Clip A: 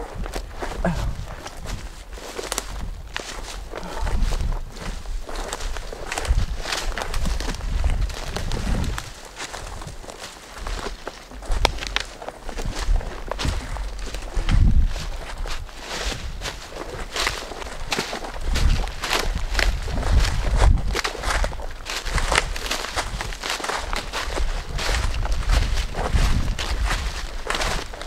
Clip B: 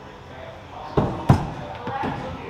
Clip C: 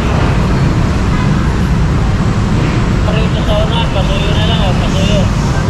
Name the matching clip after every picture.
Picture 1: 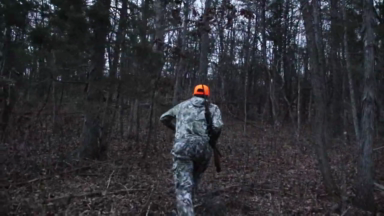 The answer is A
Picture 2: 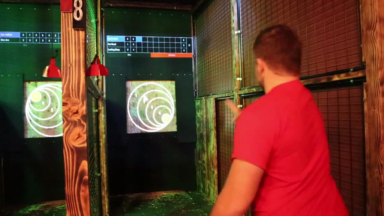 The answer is B